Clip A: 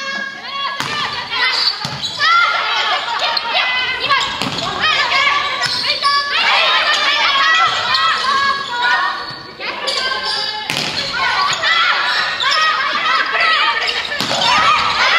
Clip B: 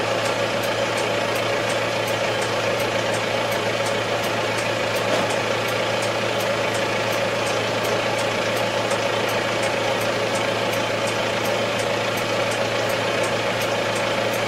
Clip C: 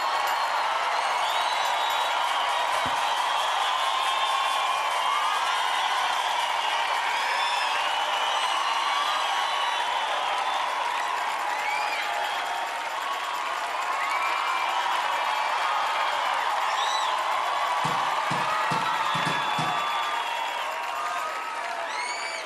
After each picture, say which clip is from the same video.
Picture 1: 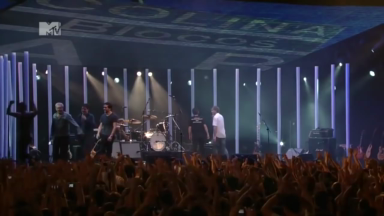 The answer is C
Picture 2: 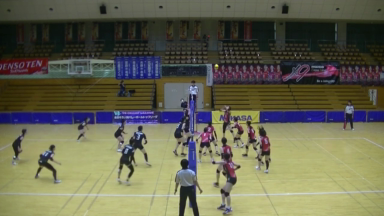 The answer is A